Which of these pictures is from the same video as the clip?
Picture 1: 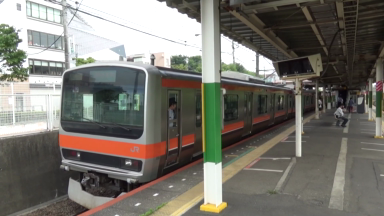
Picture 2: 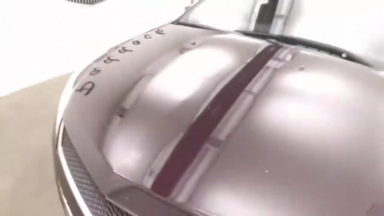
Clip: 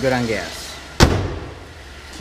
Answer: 2